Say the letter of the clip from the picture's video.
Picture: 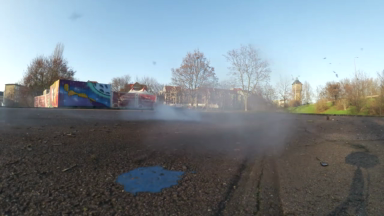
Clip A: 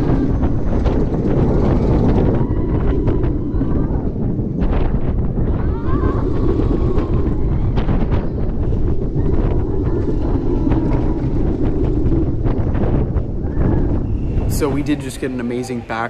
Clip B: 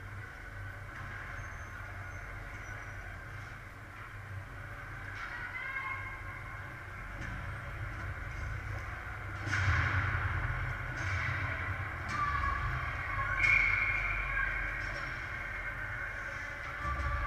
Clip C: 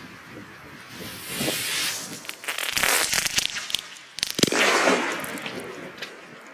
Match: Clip C